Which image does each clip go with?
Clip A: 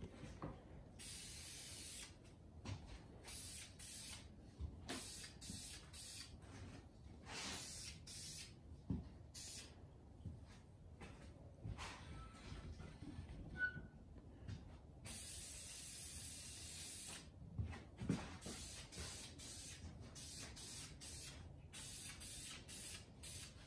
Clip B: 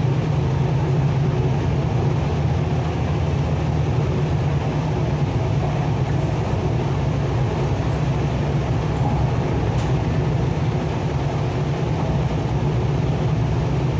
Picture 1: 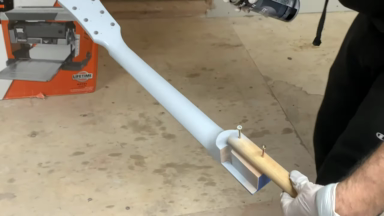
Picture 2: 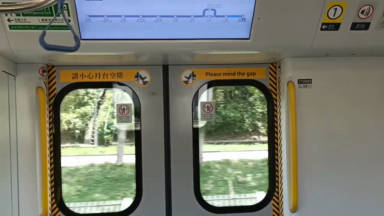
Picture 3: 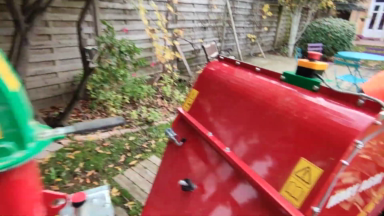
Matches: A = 1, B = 2